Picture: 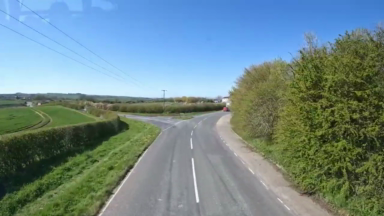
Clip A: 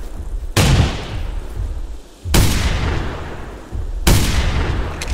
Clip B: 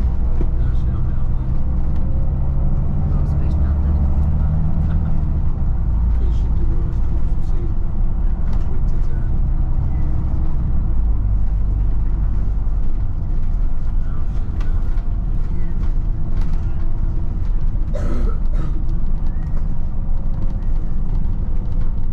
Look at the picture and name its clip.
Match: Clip B